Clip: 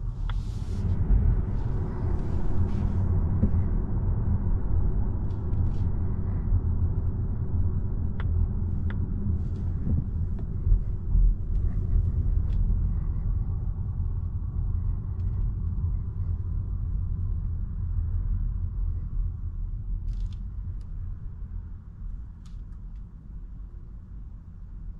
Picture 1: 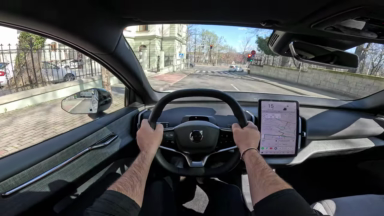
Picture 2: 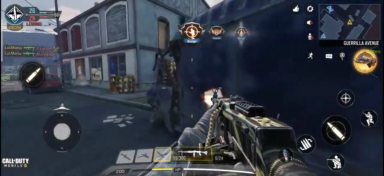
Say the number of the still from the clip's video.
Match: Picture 1